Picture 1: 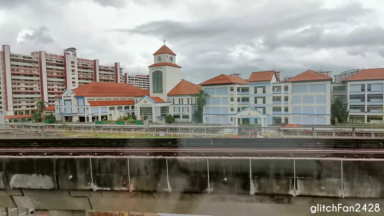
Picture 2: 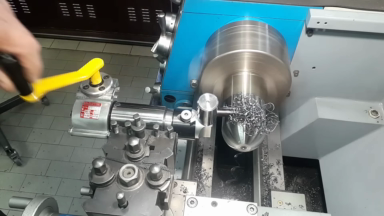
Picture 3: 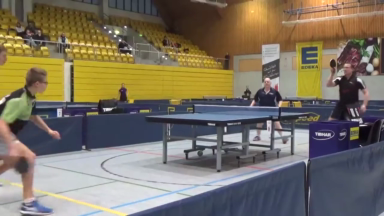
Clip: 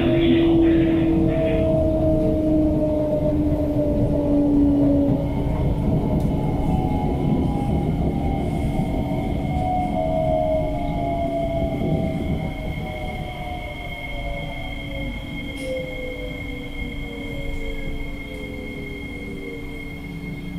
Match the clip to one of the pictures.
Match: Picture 1